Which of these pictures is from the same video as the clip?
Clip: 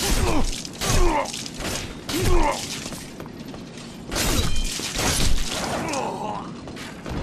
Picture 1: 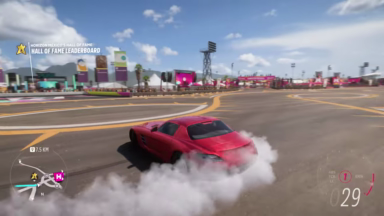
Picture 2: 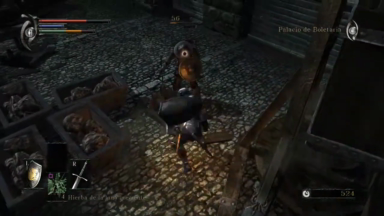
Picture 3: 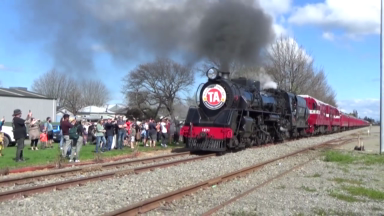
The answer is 2